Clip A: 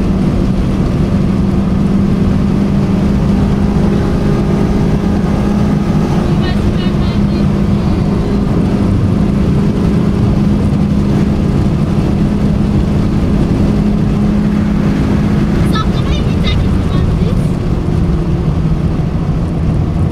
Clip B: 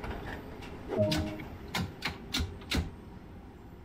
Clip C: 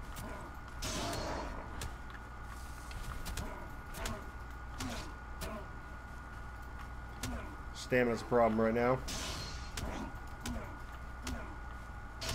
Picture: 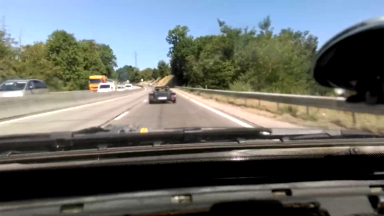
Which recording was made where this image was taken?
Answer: A